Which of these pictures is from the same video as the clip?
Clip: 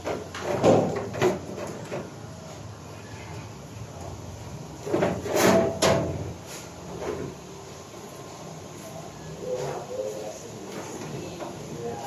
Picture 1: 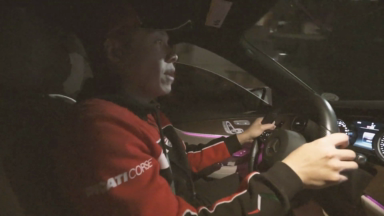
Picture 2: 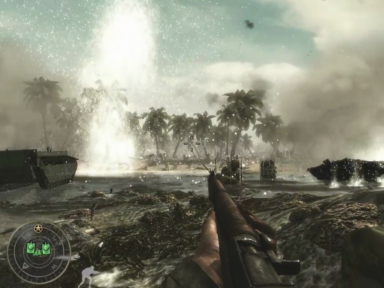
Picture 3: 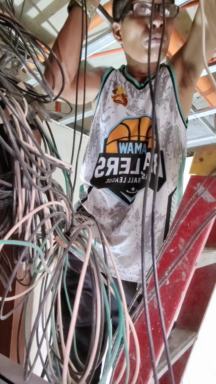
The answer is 3